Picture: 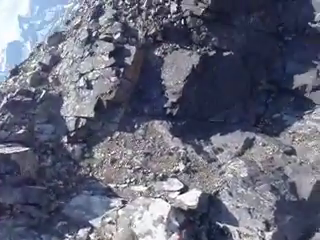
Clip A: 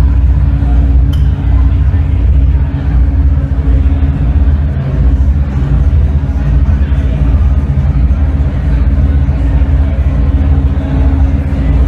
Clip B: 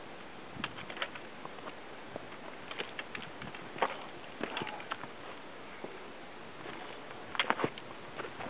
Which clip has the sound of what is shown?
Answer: B